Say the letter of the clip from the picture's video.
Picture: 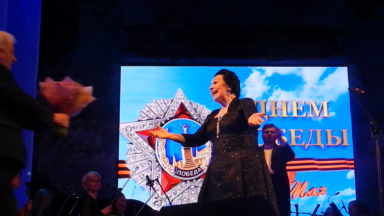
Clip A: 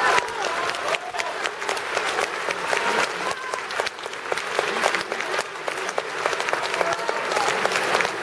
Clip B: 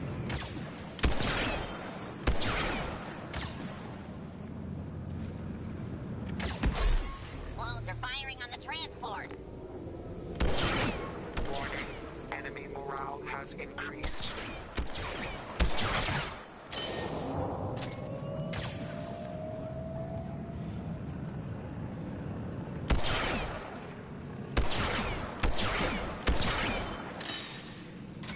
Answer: A